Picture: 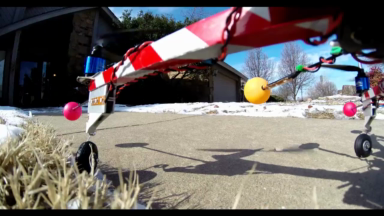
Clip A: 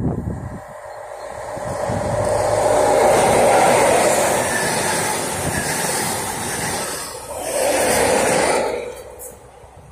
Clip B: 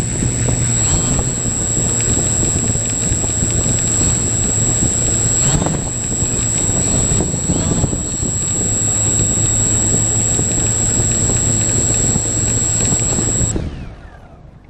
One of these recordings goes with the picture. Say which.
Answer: B